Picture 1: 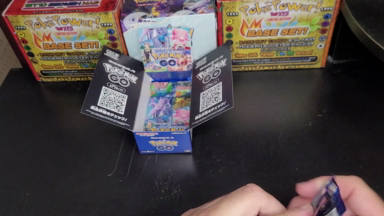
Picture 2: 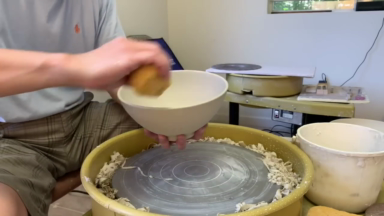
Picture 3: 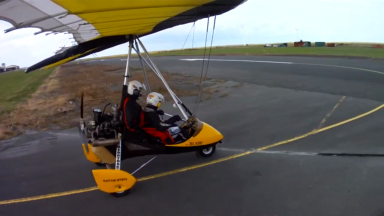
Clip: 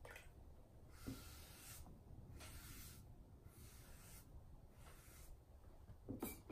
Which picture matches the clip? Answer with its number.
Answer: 2